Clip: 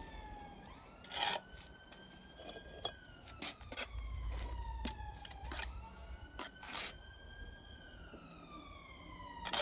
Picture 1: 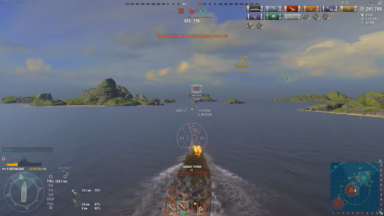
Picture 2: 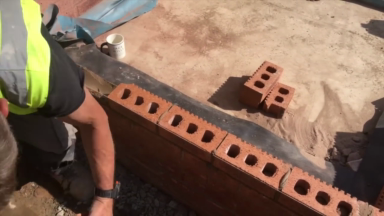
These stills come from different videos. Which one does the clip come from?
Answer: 2